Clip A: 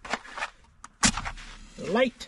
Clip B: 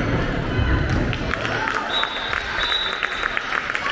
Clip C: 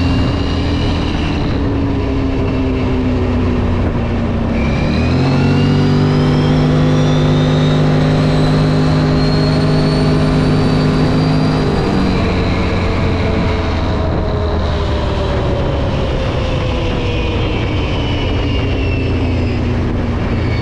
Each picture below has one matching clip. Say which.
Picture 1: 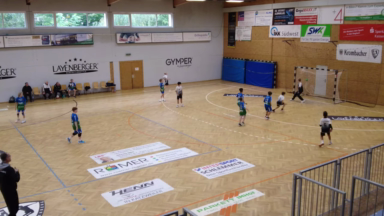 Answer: B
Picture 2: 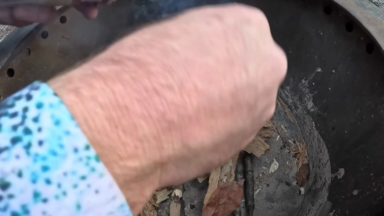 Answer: A